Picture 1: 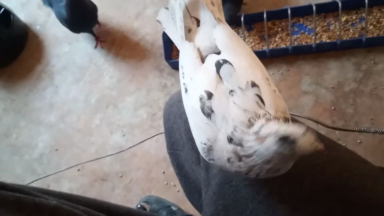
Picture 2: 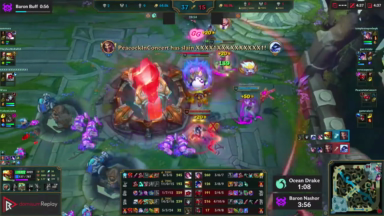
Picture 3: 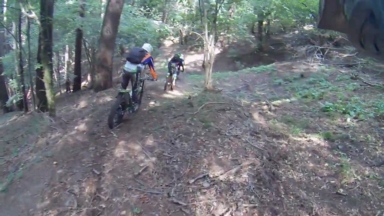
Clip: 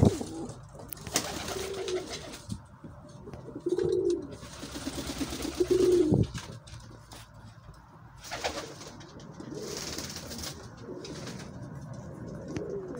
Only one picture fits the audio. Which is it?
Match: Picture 1